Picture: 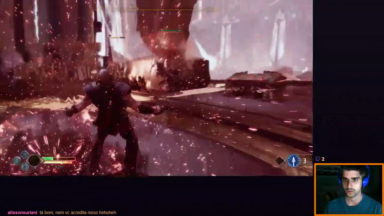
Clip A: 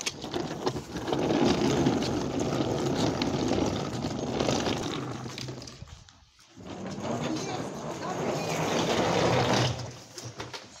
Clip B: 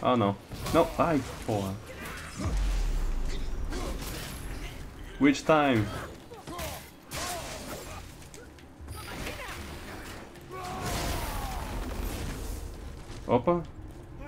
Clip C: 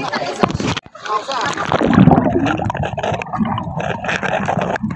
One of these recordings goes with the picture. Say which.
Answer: B